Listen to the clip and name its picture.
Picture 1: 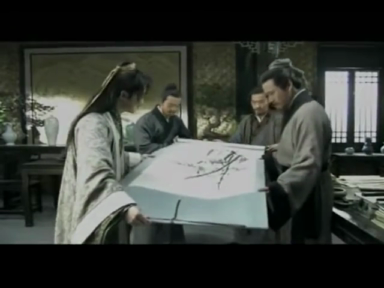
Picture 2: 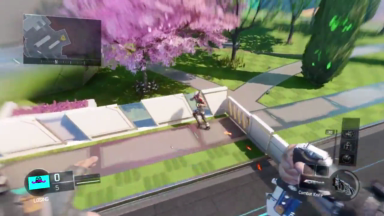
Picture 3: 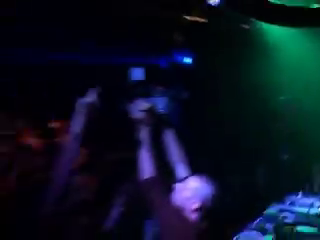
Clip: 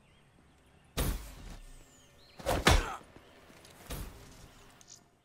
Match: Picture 2